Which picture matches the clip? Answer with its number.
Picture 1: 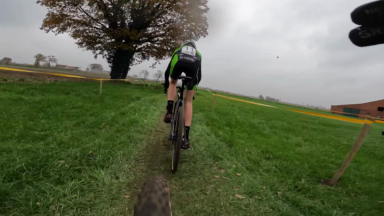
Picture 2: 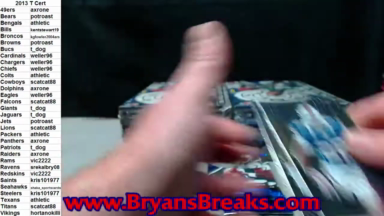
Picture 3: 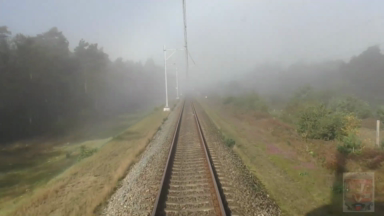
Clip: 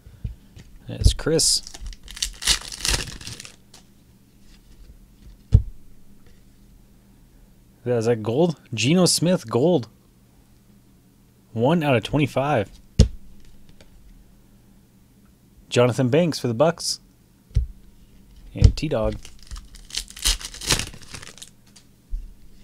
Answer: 2